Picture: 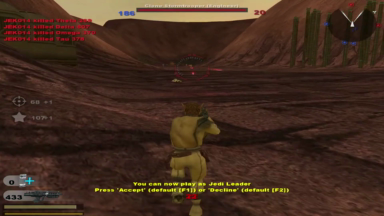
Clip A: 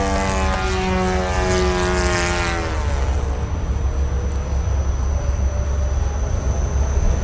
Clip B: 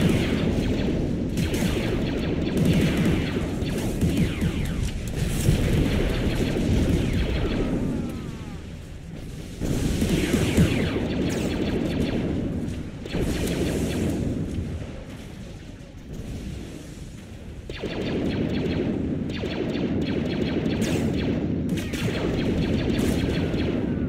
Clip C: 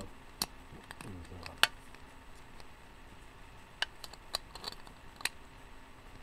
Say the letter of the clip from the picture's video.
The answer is B